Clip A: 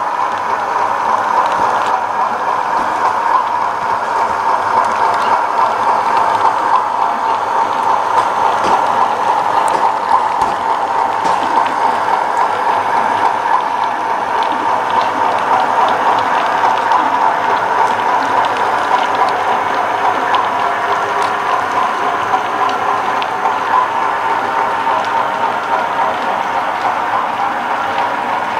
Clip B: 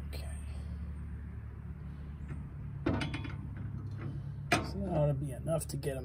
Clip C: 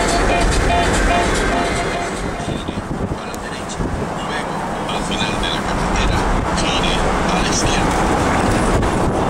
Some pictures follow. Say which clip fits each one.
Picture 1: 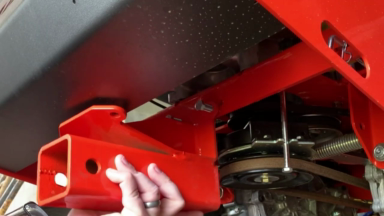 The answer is B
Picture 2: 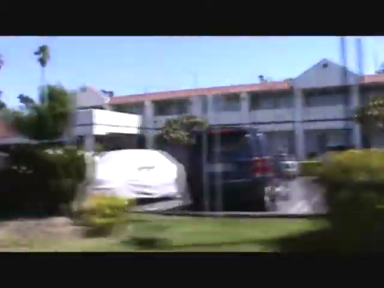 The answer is C